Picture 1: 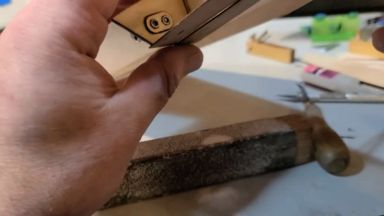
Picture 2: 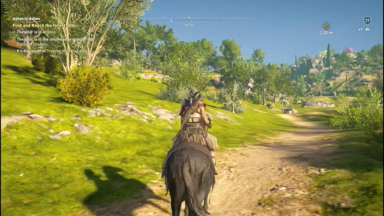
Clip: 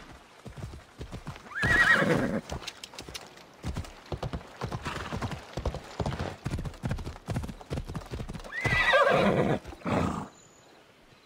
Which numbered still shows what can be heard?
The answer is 2